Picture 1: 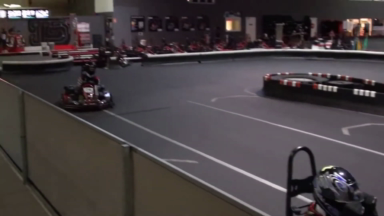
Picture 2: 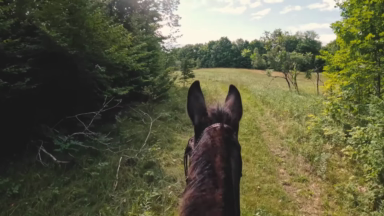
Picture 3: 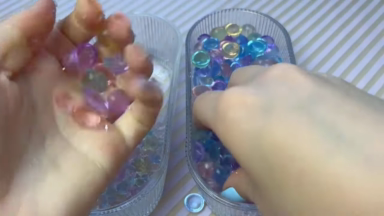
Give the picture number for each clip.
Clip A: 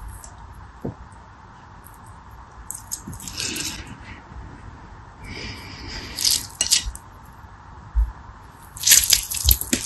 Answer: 3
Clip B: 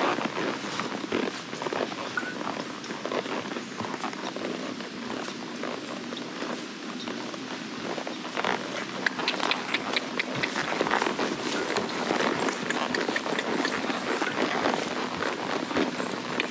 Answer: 2